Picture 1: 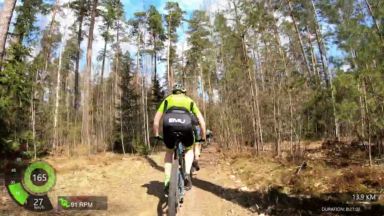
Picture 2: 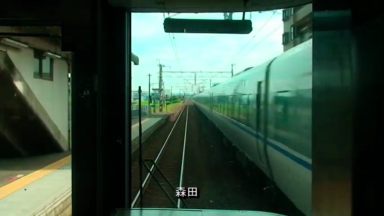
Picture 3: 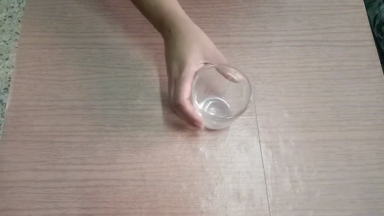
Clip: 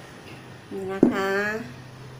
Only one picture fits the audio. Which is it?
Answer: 3